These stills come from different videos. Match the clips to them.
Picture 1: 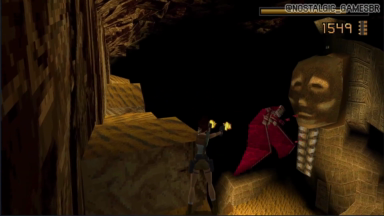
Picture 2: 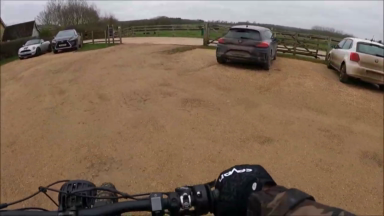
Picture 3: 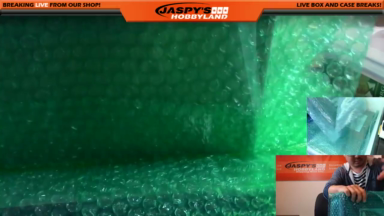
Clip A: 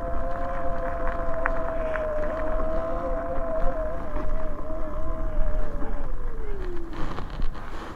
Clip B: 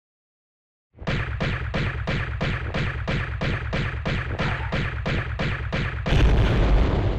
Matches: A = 2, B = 1